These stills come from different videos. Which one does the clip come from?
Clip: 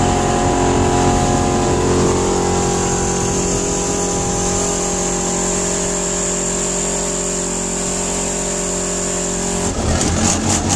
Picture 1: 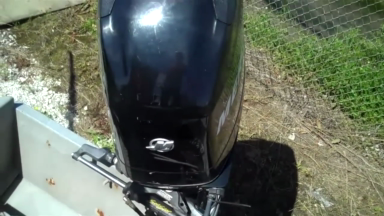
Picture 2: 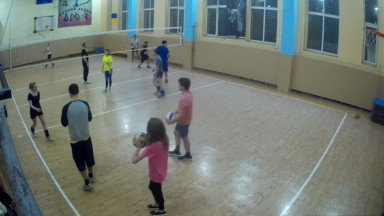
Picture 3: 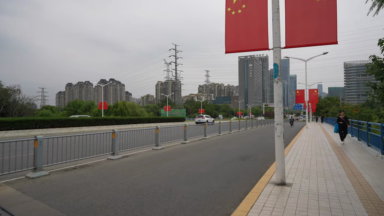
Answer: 1